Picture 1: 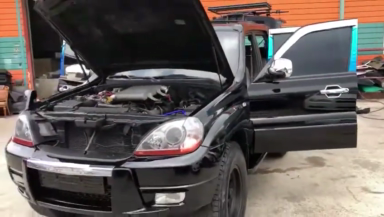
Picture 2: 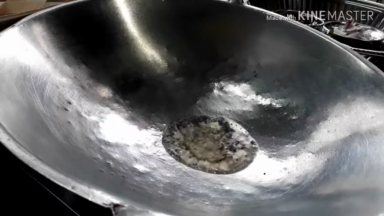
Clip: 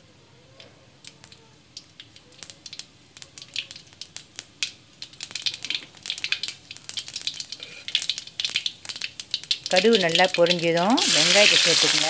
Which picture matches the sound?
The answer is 2